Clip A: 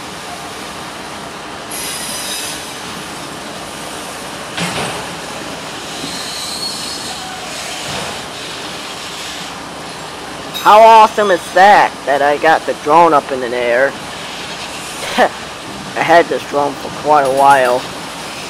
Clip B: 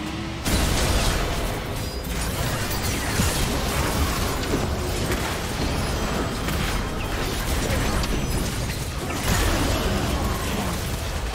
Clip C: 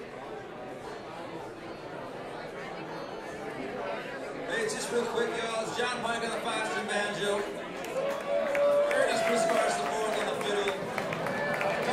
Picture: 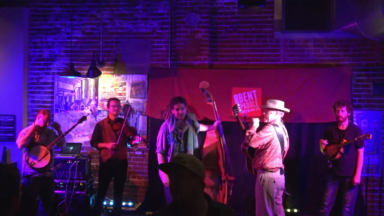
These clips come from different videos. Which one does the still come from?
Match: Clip C